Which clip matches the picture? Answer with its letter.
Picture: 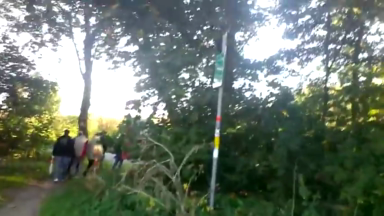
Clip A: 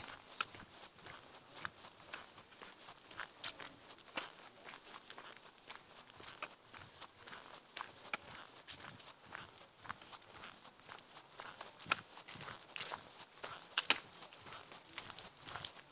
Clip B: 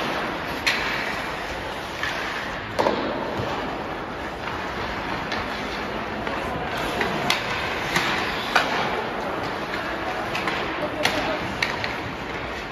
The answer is A